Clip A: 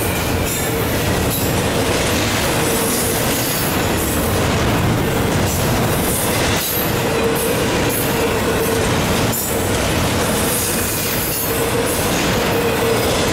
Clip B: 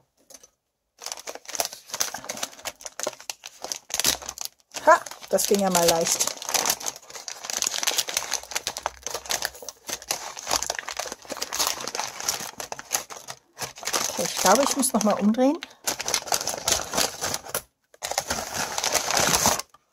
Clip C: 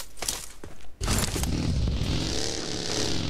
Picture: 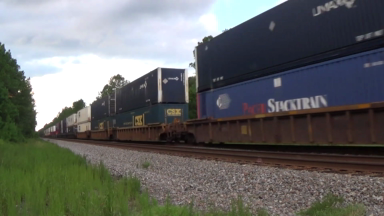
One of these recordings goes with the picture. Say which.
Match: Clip A